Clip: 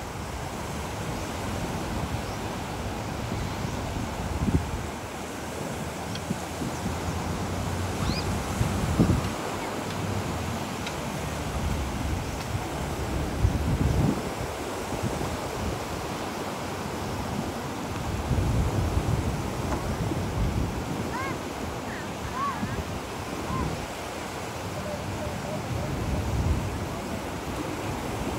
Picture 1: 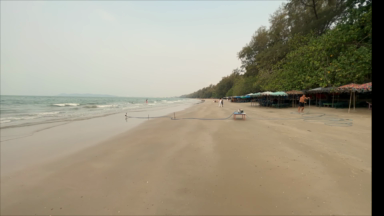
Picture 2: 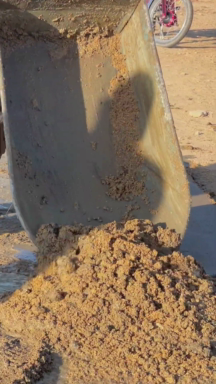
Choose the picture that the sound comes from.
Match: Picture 1